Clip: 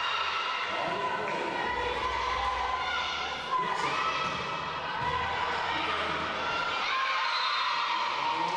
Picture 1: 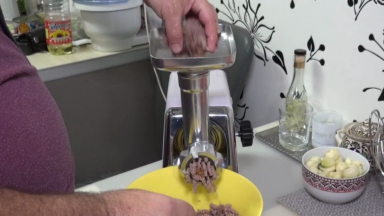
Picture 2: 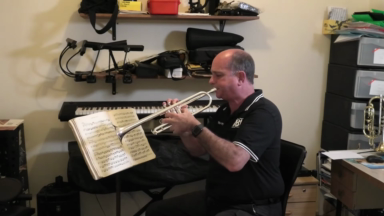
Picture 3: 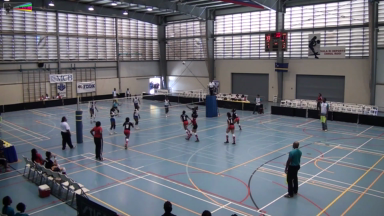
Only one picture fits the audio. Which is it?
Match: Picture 3